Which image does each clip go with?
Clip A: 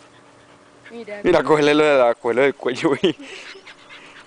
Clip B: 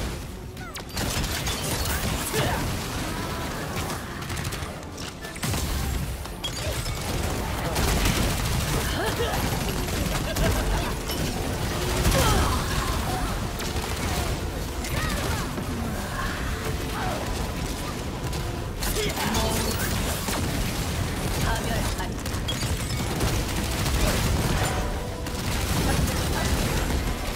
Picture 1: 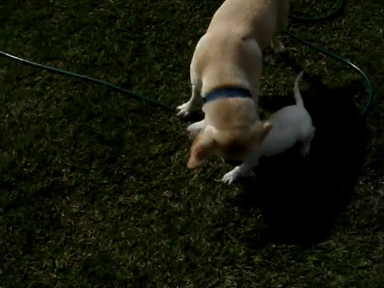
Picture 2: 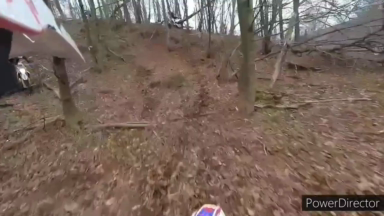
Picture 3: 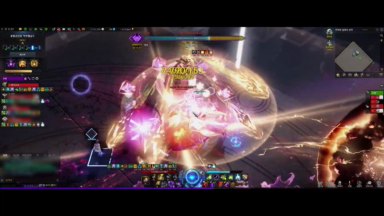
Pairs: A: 1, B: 3